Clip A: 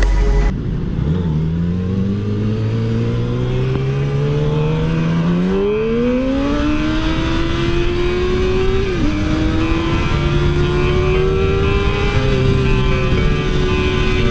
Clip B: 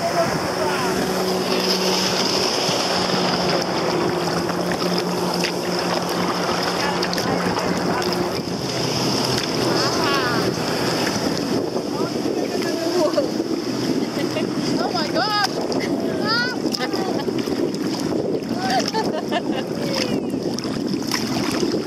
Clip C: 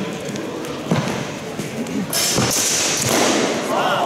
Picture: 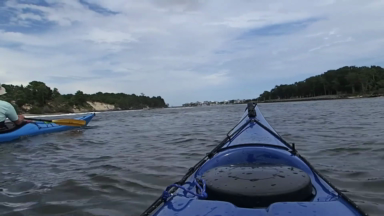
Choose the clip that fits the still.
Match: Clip B